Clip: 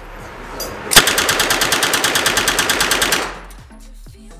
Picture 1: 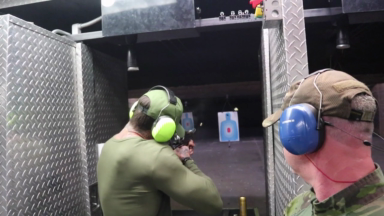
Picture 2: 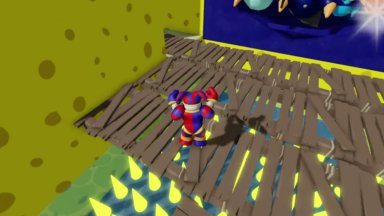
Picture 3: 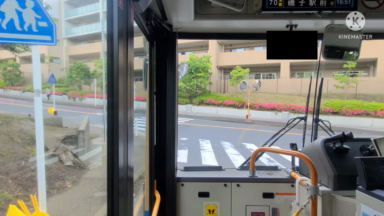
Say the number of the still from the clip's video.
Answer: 1